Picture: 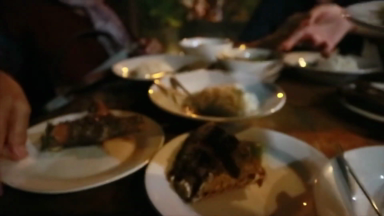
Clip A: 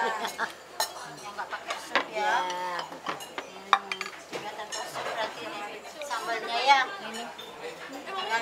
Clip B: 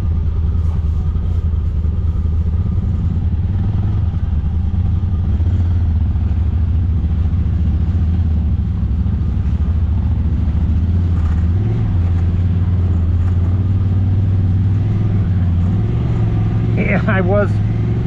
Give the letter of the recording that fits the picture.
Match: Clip A